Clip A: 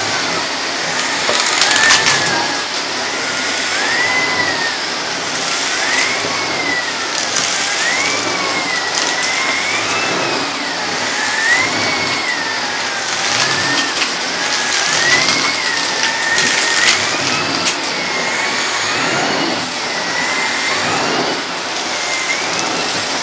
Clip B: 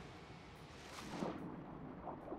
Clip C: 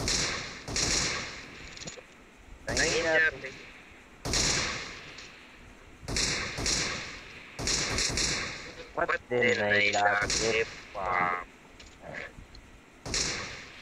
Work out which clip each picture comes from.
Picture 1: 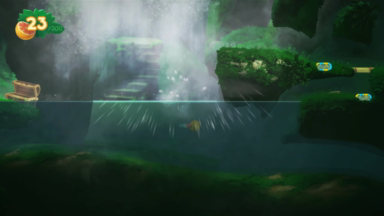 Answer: B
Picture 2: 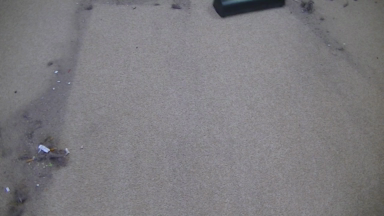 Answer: A